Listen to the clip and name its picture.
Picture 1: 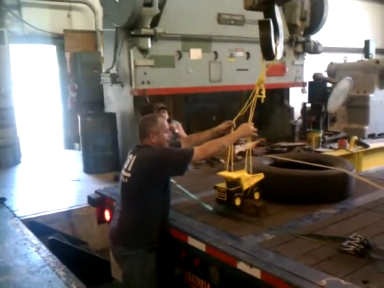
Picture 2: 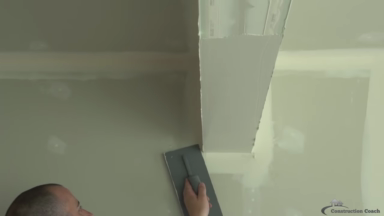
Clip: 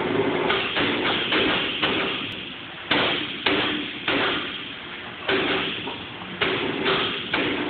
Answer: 1